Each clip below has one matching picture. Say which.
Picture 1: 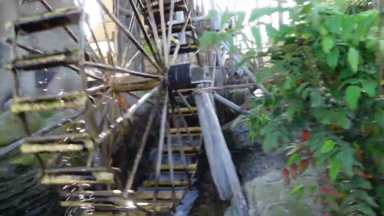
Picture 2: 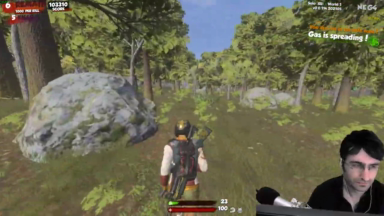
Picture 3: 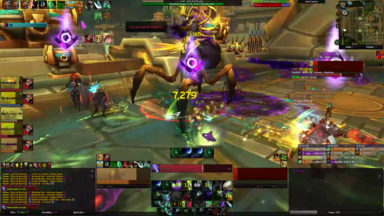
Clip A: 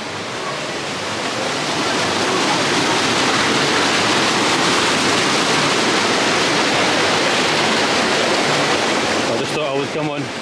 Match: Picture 1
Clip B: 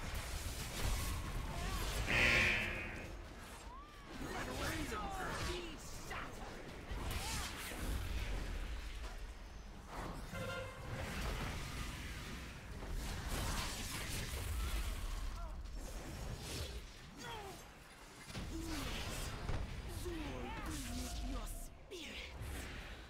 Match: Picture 3